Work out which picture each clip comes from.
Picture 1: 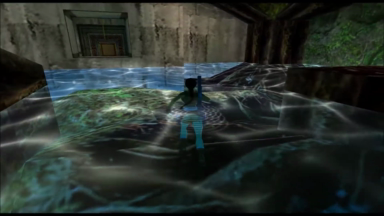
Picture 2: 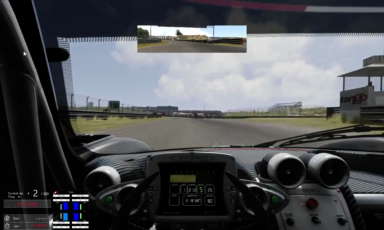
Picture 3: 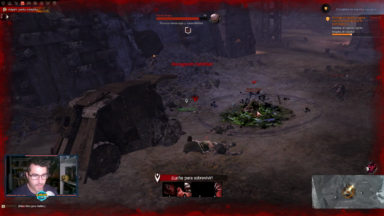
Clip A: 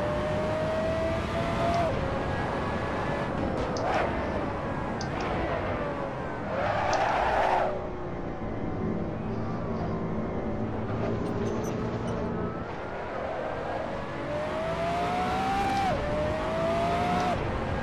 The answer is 2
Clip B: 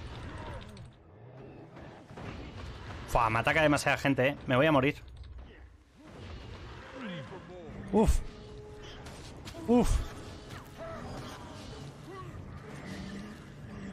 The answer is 3